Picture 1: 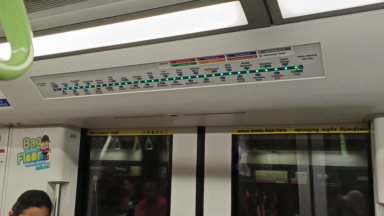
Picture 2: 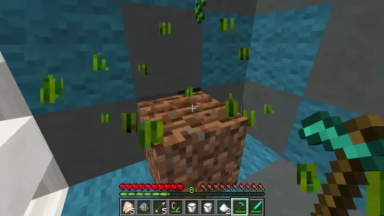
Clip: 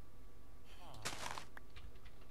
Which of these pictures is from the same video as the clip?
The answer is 2